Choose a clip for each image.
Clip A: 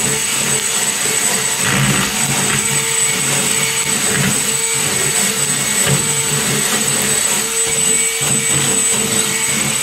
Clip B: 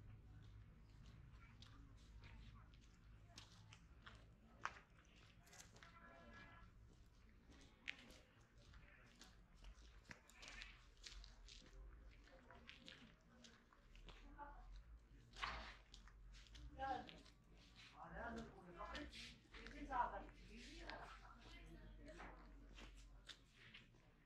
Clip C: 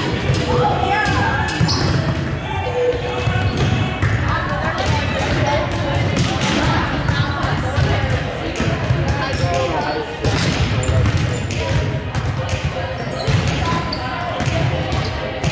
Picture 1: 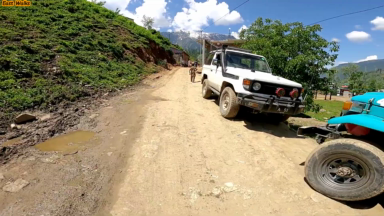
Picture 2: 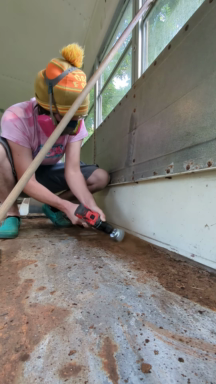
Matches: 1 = B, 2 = A